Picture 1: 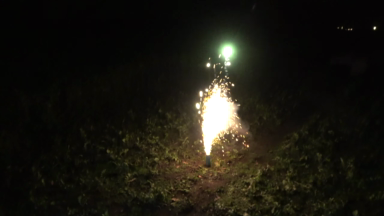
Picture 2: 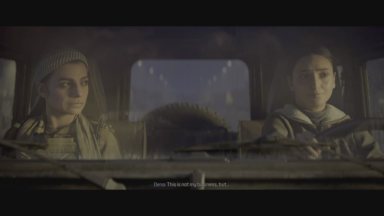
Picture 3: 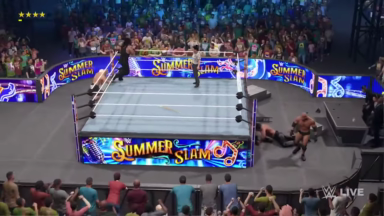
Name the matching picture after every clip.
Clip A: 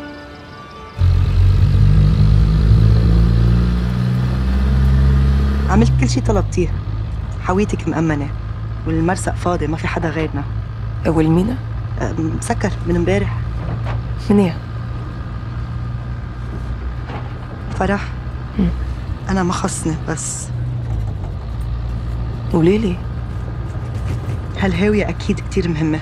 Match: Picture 2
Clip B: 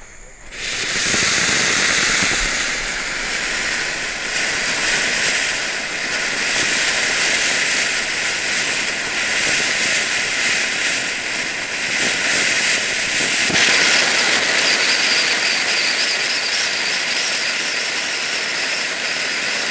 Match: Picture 1